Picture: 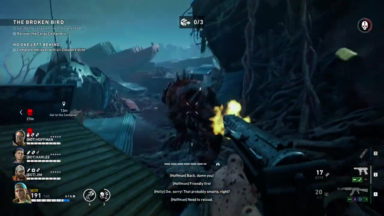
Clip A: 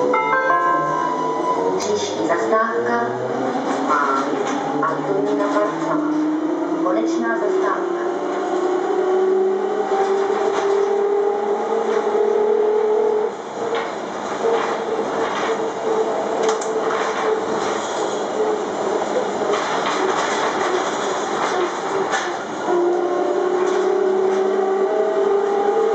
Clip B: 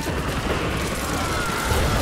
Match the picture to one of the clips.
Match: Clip B